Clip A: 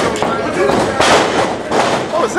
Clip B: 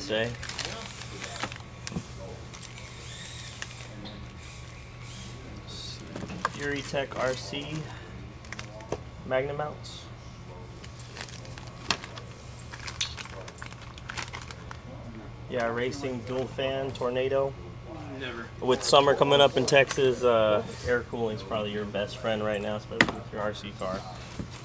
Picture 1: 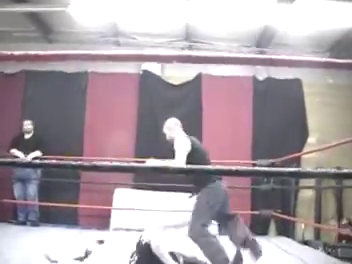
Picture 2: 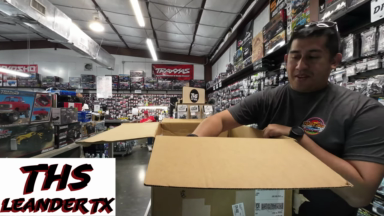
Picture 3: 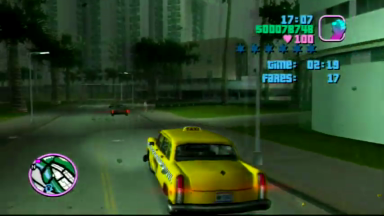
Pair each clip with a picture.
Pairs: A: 1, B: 2